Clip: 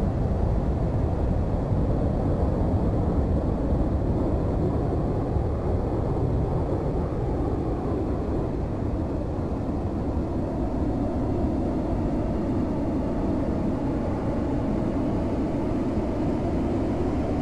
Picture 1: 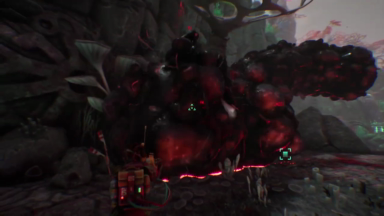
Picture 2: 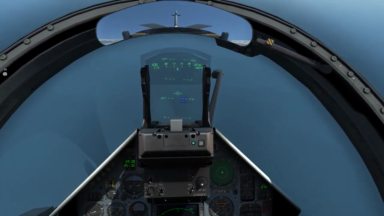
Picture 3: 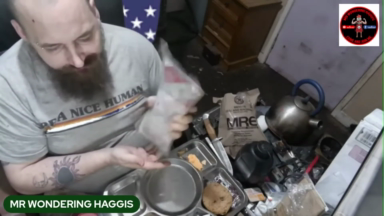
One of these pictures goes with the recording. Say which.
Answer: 2